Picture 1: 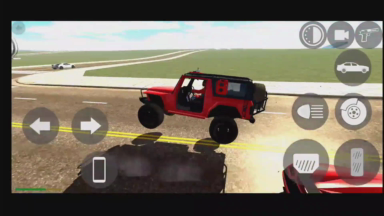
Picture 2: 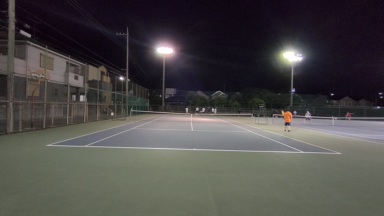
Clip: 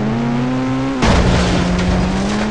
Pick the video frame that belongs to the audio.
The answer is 1